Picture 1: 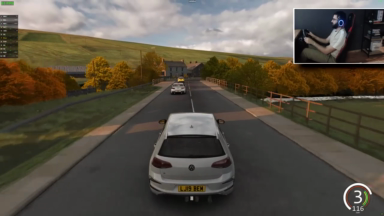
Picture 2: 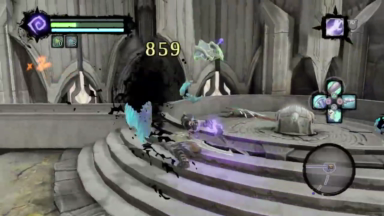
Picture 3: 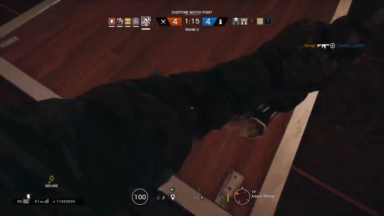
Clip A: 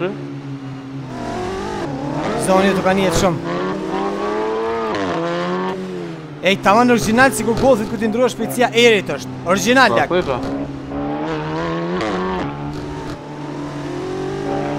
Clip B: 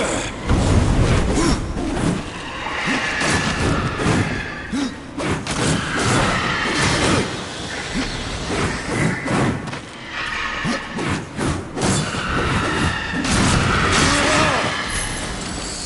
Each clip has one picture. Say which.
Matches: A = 1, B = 2